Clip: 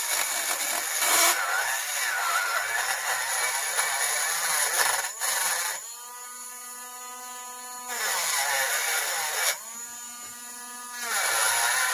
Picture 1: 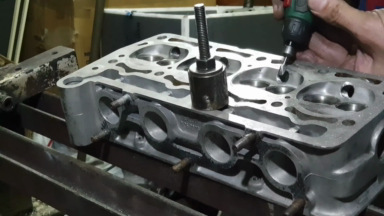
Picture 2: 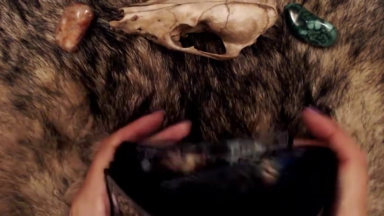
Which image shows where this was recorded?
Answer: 1